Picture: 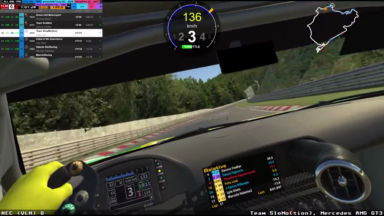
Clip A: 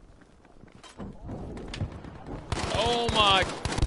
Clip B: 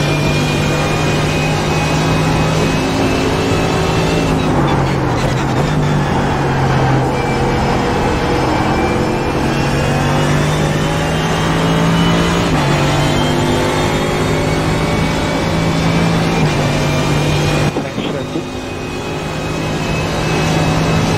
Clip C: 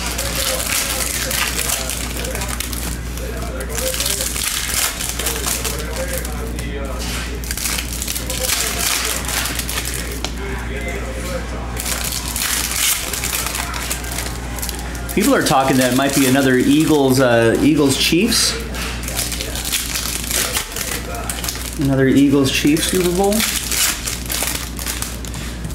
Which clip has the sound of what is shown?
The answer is B